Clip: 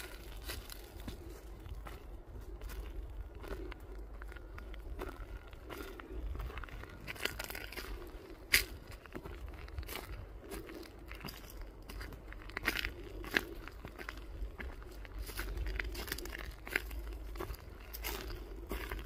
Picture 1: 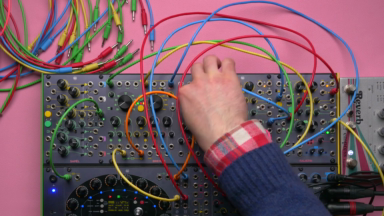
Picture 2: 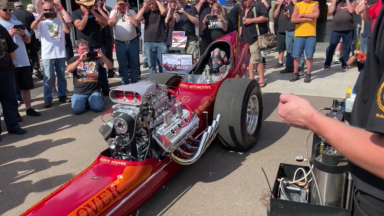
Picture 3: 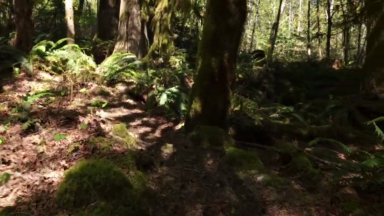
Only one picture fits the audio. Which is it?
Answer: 3